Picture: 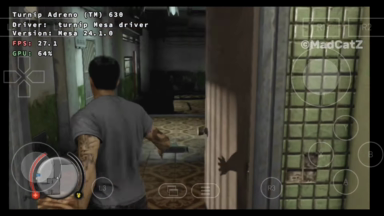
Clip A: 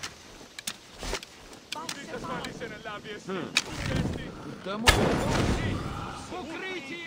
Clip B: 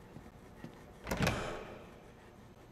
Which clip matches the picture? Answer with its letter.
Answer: B